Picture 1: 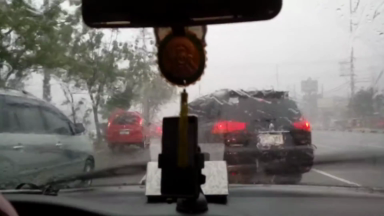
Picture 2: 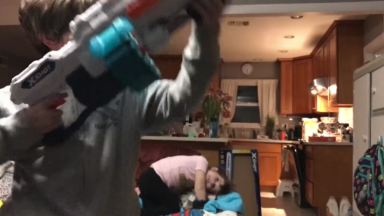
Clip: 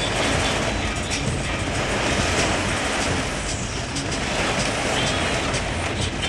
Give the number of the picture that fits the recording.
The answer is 1